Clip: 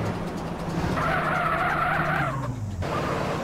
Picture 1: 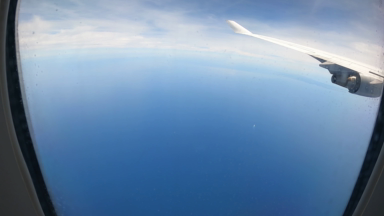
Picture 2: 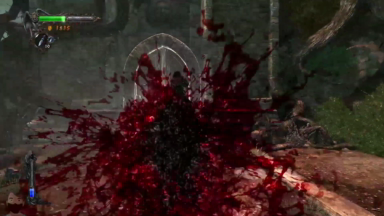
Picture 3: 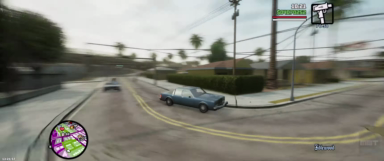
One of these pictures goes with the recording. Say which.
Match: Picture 3